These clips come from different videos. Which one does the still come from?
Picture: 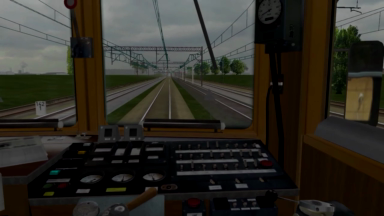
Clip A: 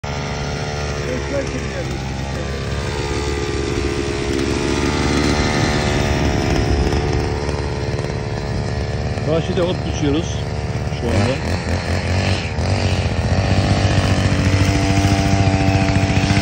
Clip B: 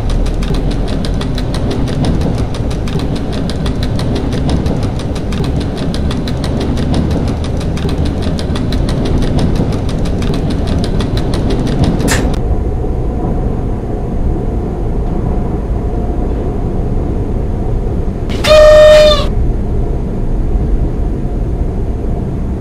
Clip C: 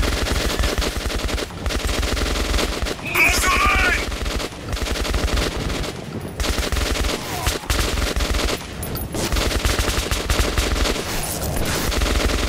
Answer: B